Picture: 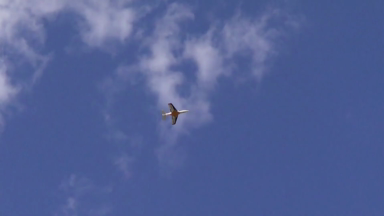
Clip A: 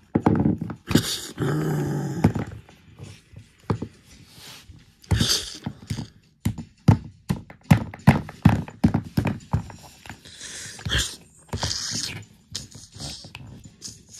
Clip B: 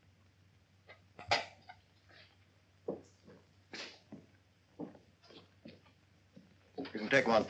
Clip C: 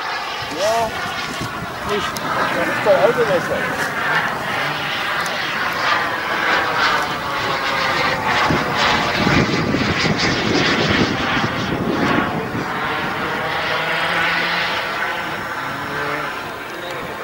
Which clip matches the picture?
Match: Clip C